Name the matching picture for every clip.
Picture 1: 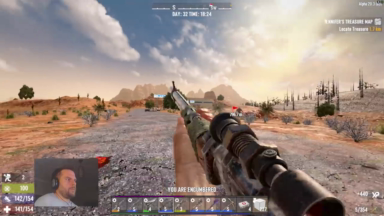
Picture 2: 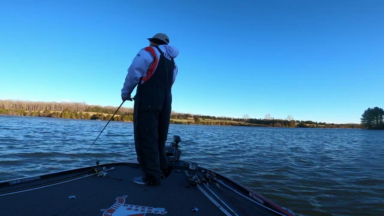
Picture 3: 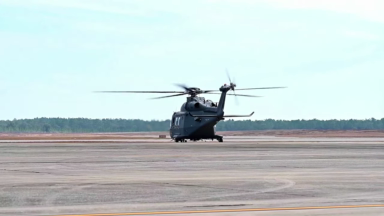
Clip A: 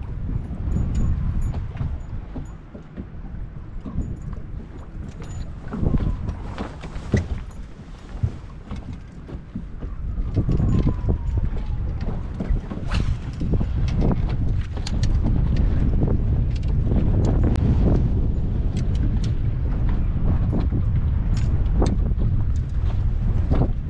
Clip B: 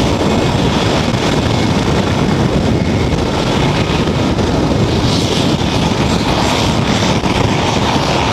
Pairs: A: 2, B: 3